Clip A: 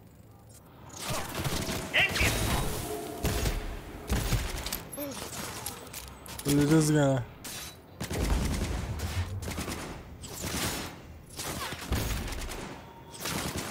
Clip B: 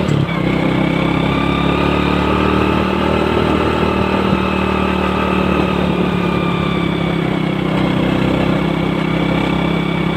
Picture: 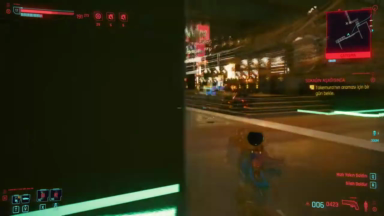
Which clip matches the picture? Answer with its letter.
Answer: A